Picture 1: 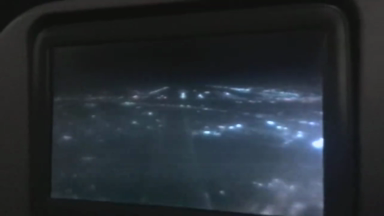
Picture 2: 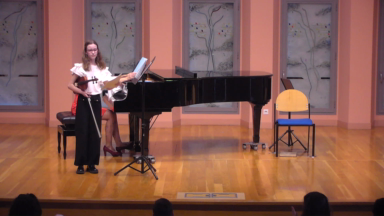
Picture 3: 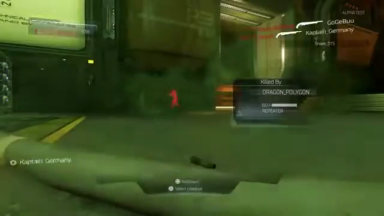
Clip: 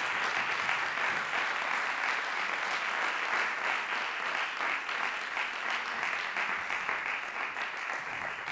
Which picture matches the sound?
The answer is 2